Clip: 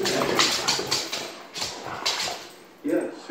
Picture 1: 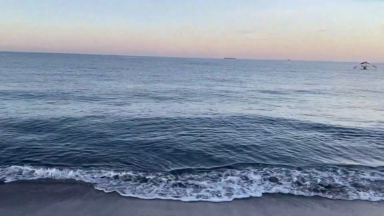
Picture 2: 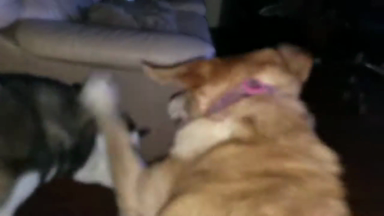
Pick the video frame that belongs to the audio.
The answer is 2